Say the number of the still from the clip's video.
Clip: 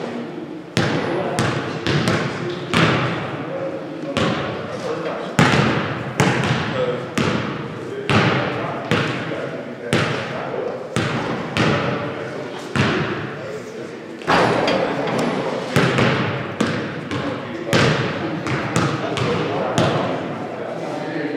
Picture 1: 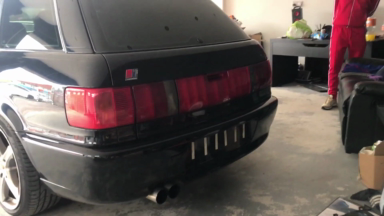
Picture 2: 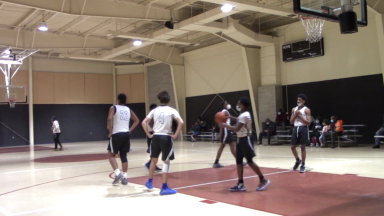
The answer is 2